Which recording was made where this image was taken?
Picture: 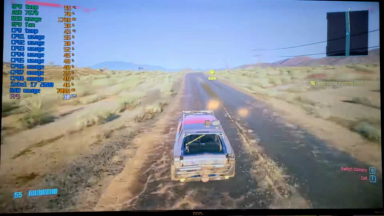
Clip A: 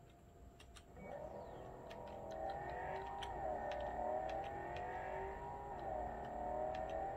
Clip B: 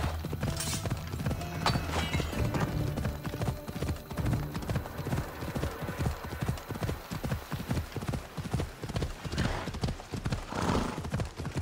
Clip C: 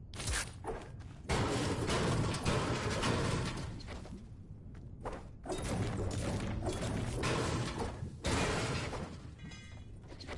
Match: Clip A